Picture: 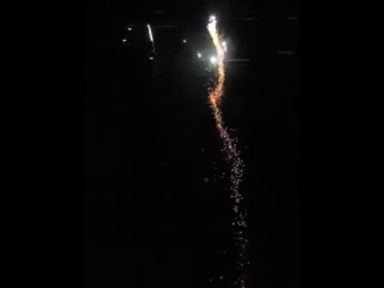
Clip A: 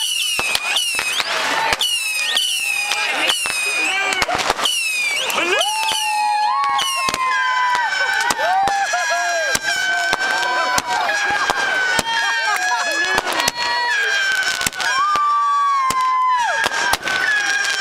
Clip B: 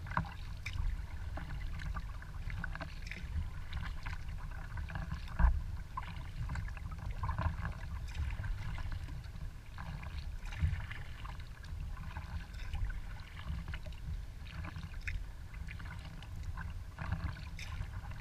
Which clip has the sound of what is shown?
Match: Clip A